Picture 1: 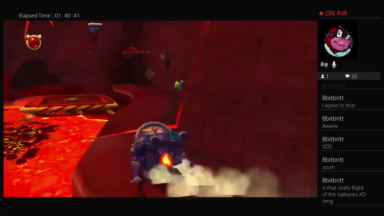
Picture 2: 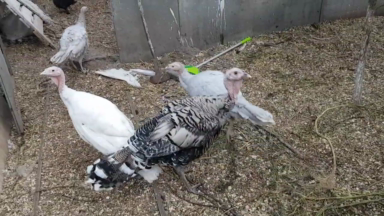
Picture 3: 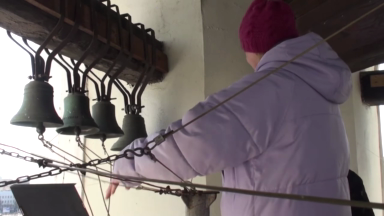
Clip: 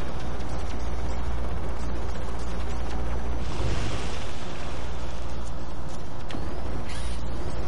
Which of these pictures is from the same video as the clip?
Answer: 1